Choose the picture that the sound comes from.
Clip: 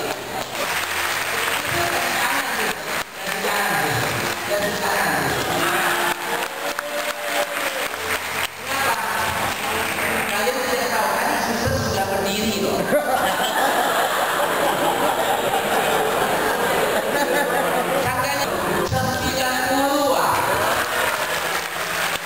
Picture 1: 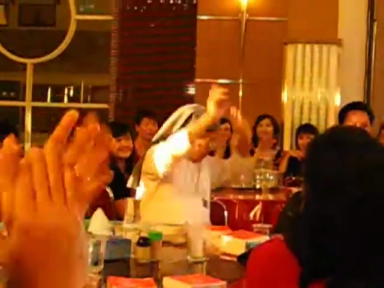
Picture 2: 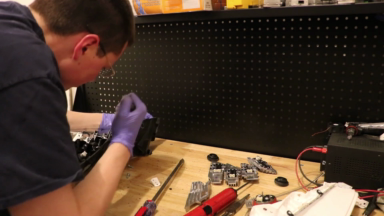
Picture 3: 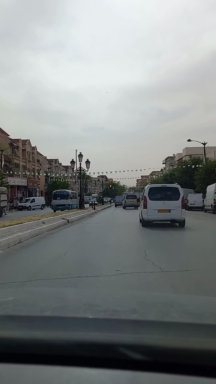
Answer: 1